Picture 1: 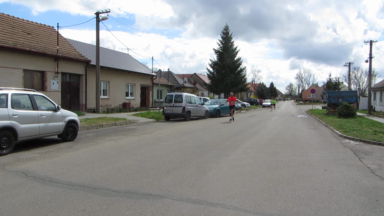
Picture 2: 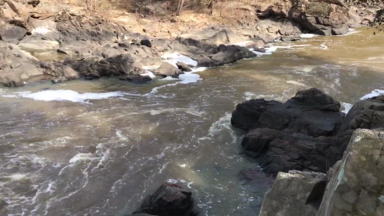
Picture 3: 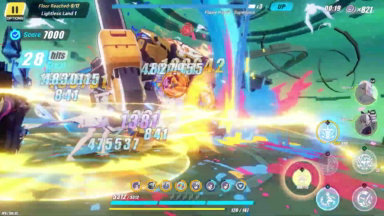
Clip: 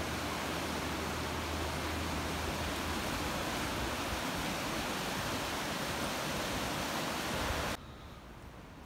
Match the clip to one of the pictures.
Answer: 2